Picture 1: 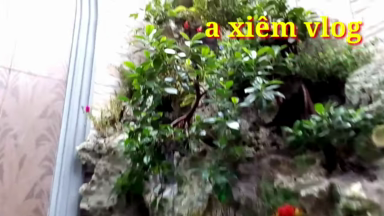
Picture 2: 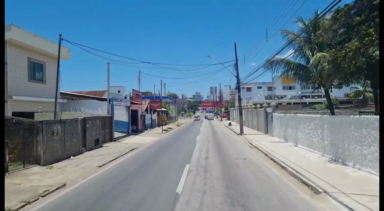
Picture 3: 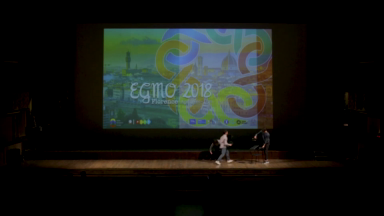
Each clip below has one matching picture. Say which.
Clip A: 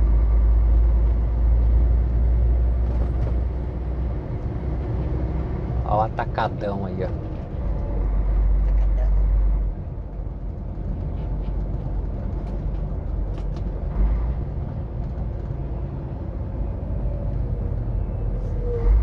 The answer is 2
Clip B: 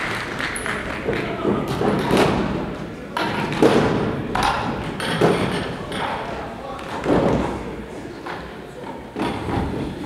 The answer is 3